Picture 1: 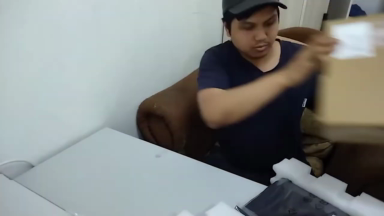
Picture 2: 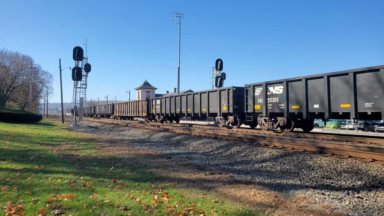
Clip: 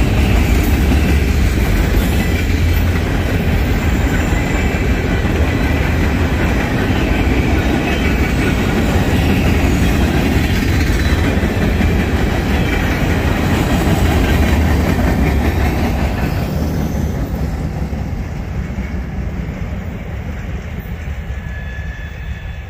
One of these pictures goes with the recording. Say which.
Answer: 2